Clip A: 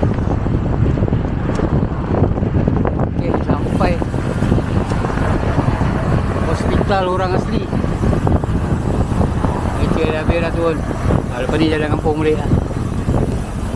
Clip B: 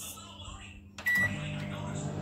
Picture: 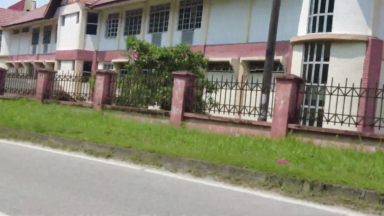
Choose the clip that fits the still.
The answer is A